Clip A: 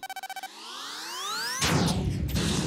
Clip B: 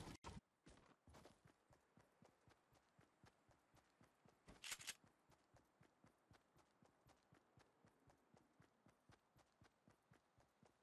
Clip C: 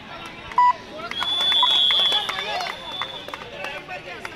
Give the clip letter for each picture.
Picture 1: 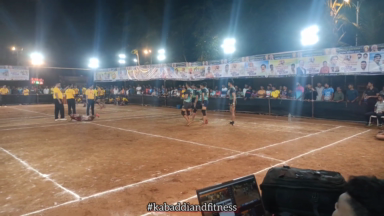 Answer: C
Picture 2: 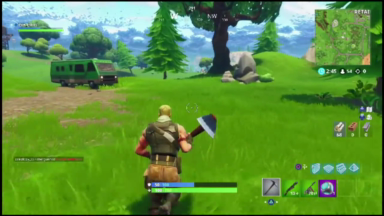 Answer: B